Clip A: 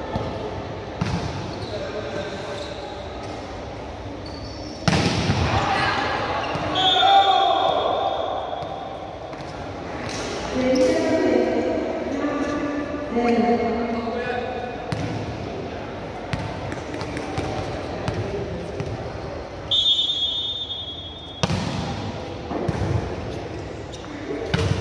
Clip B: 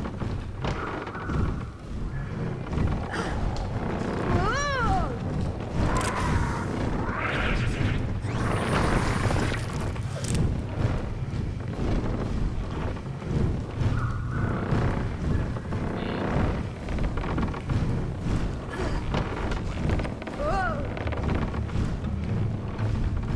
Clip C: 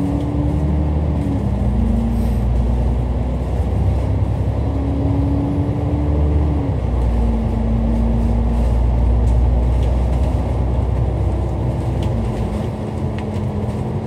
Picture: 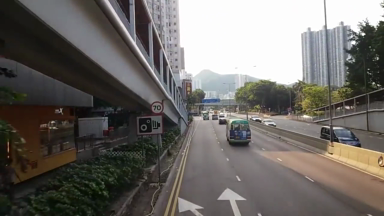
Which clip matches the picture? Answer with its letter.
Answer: C